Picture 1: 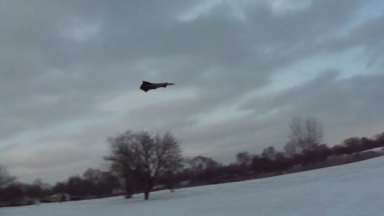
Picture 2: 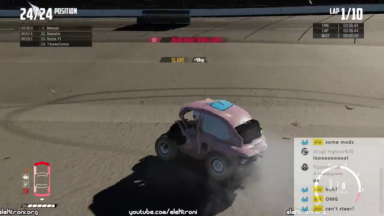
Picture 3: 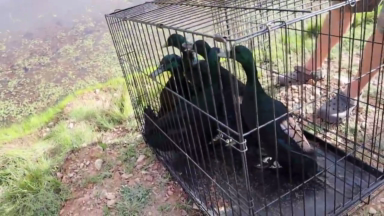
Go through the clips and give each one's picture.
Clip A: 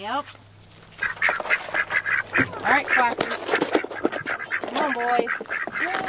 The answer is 3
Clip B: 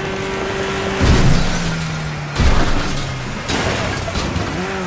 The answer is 2